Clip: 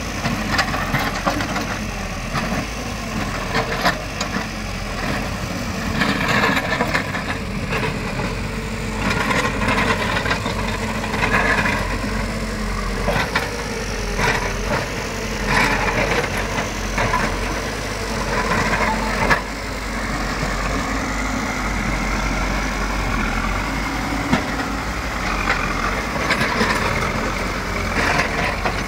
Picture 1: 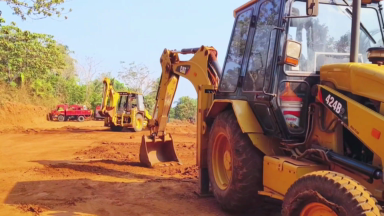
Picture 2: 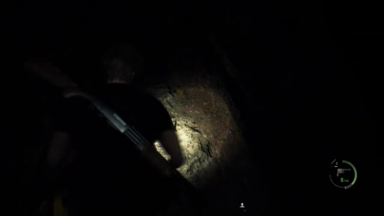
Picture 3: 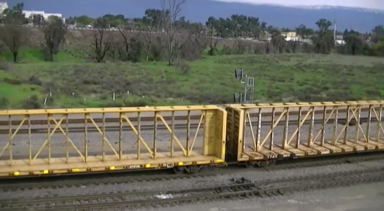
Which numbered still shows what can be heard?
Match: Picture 1